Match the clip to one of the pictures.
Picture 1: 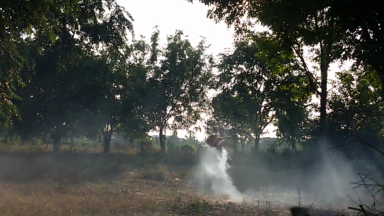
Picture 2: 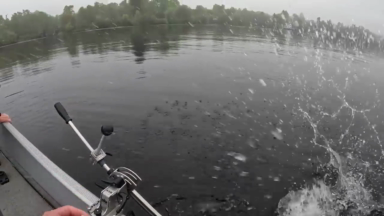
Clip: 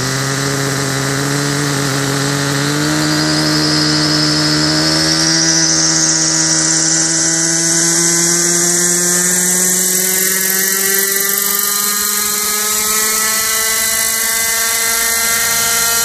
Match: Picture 1